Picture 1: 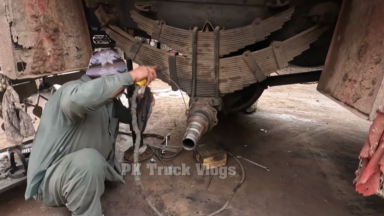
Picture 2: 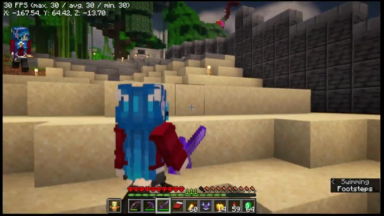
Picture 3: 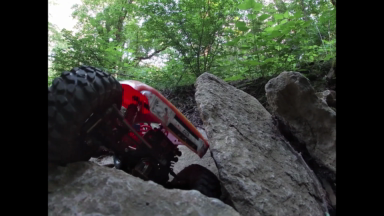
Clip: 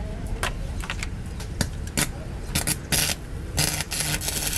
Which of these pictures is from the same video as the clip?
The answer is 1